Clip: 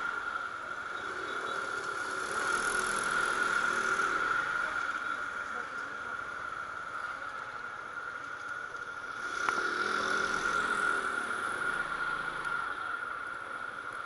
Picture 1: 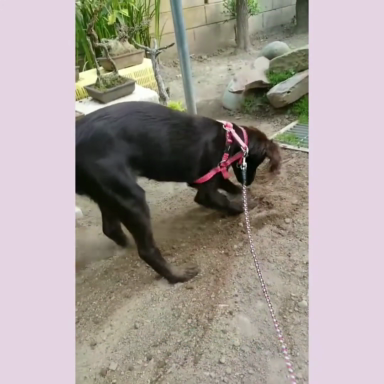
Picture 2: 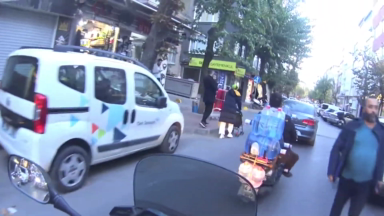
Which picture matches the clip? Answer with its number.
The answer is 2